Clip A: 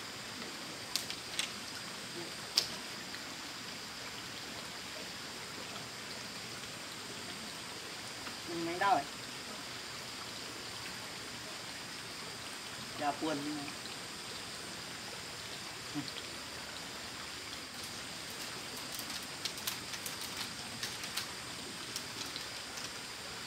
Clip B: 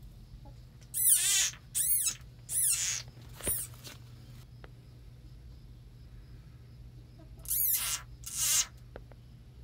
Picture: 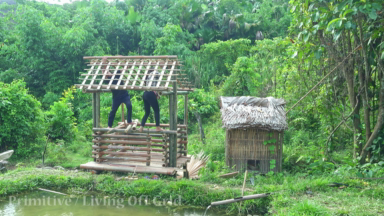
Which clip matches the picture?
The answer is A